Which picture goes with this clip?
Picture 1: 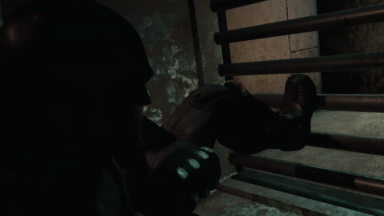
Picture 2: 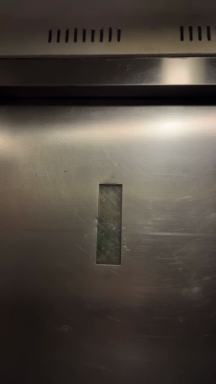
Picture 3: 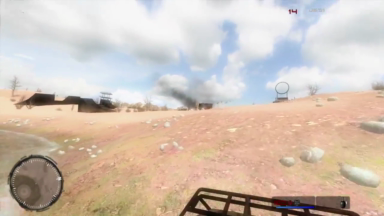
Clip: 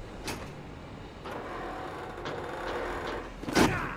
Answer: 1